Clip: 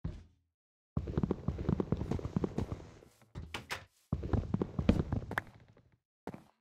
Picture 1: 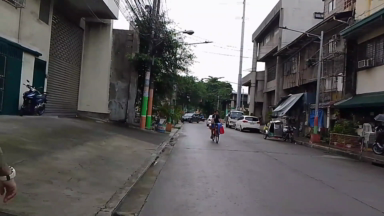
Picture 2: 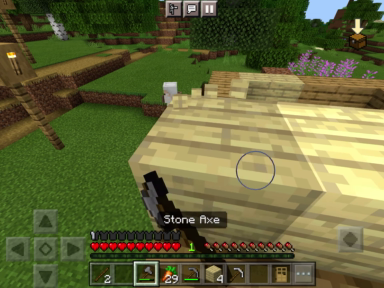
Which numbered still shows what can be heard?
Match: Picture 2